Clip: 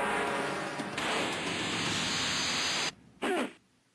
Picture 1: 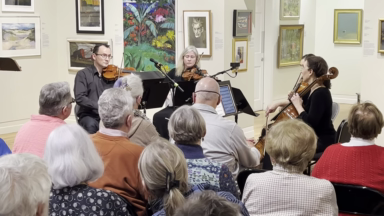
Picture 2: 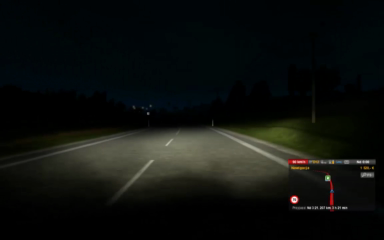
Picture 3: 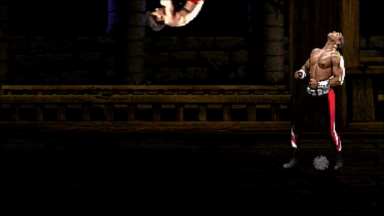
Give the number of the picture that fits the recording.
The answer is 3